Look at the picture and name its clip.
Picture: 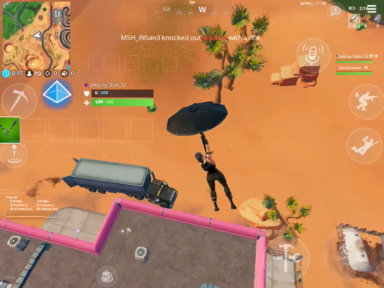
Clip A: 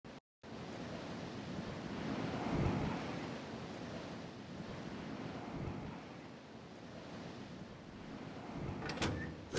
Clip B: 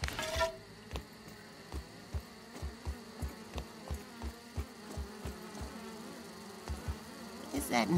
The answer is A